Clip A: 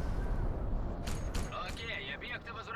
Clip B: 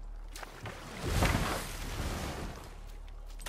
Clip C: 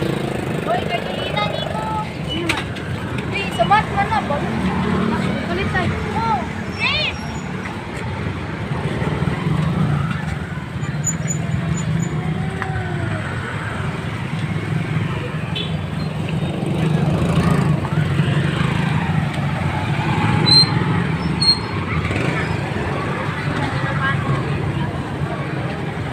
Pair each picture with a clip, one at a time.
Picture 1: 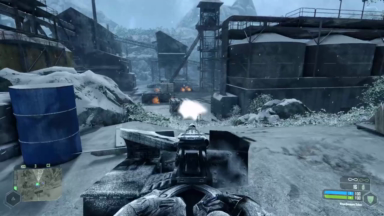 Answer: A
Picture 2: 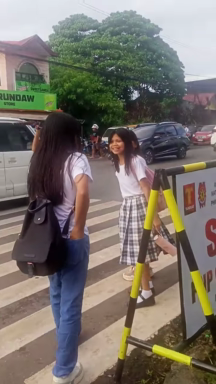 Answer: C